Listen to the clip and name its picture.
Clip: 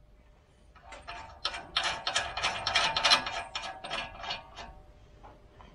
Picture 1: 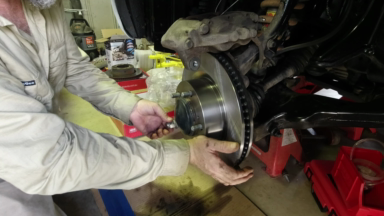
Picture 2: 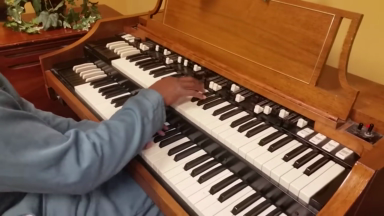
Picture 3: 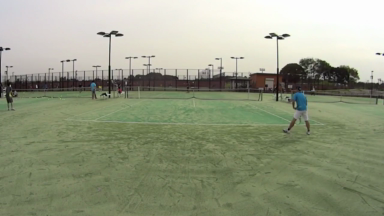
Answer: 1